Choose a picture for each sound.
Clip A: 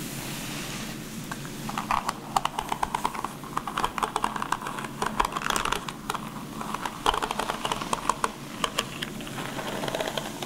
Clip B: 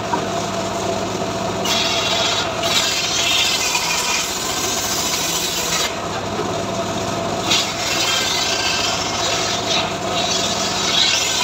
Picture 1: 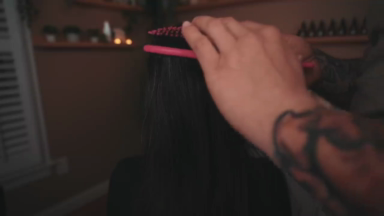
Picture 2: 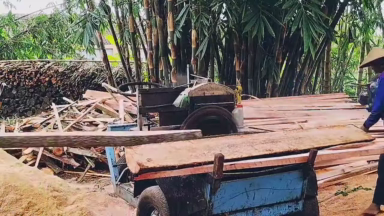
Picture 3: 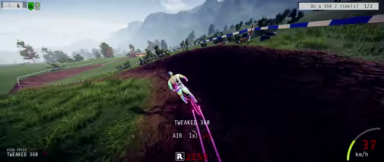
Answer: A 1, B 2